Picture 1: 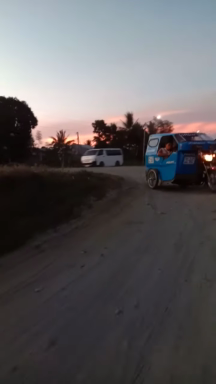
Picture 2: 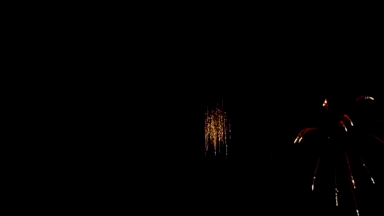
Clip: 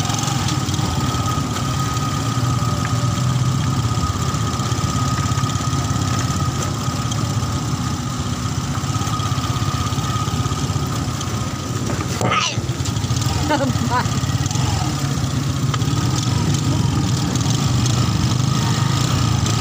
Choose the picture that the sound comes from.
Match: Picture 1